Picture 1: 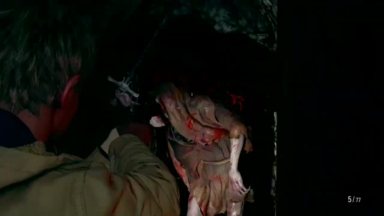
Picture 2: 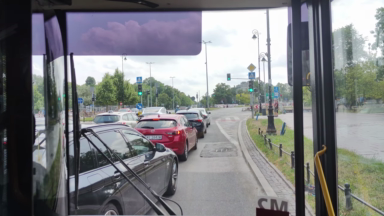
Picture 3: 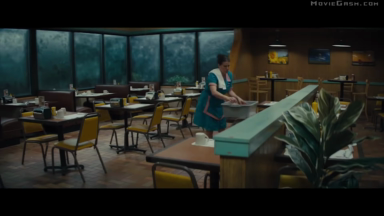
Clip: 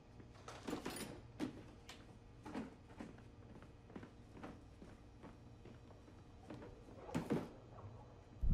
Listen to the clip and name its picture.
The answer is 3